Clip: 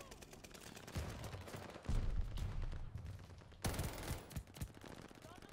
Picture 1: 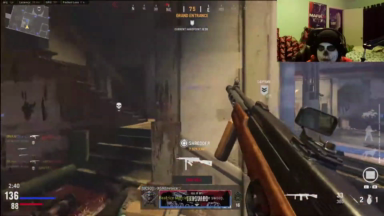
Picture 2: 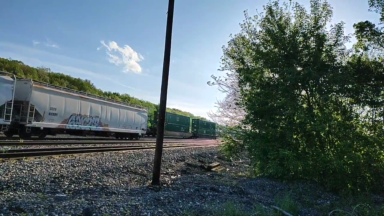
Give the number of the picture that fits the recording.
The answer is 1